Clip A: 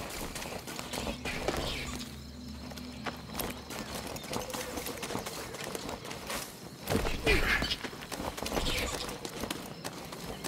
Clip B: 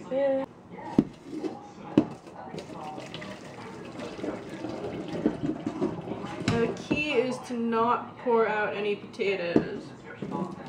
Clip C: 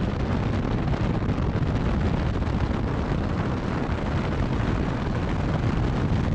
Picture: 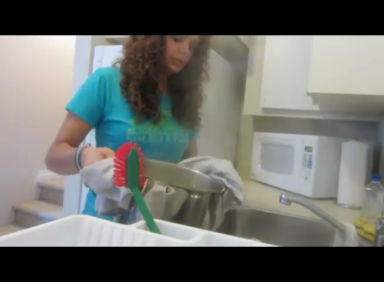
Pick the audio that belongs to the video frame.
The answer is B